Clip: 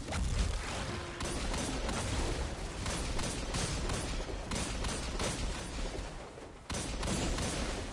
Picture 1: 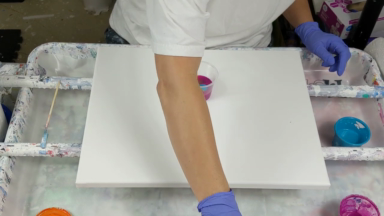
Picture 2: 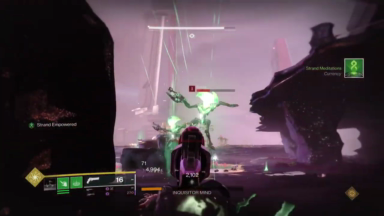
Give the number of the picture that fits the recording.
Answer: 2